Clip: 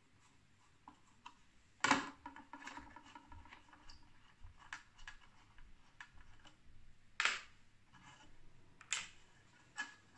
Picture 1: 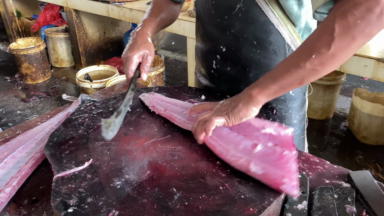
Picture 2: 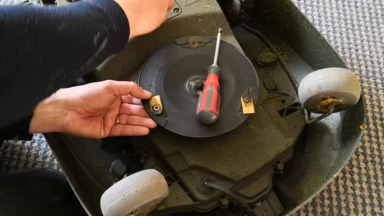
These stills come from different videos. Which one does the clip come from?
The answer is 2